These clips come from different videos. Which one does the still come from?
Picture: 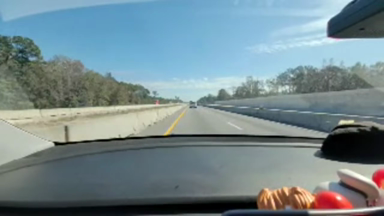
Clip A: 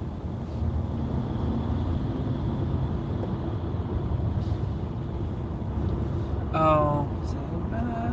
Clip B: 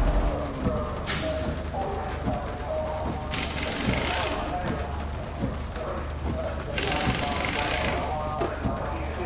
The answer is A